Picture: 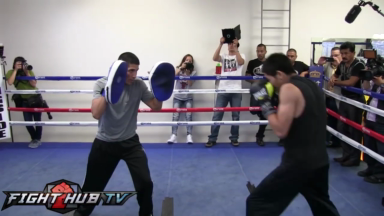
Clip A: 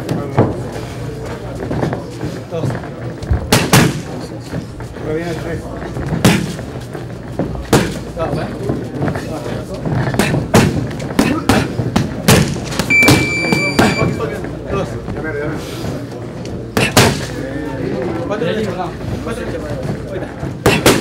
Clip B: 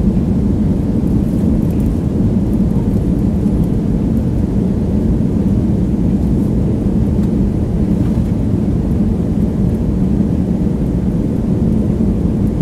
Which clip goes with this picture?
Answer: A